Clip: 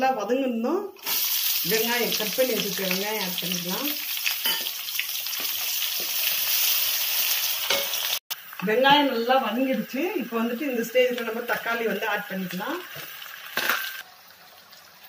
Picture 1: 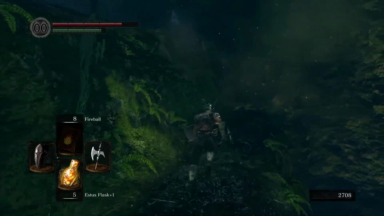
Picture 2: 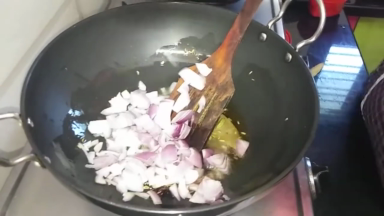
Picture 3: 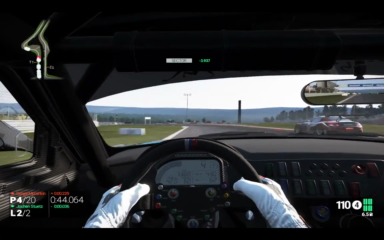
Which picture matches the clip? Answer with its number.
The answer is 2